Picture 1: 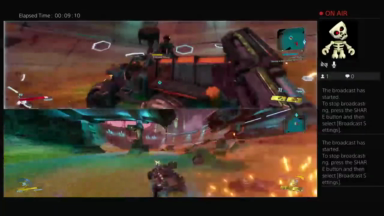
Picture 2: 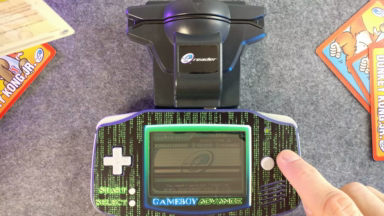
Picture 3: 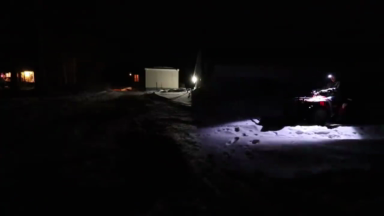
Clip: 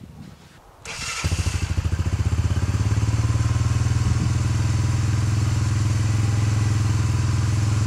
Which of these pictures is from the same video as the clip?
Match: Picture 3